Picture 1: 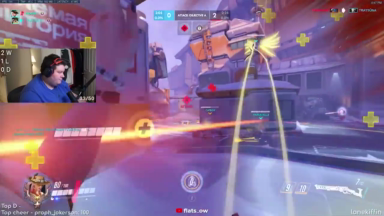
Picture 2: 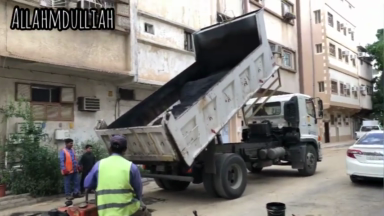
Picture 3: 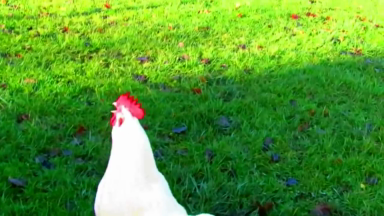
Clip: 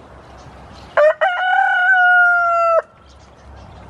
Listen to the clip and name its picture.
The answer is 3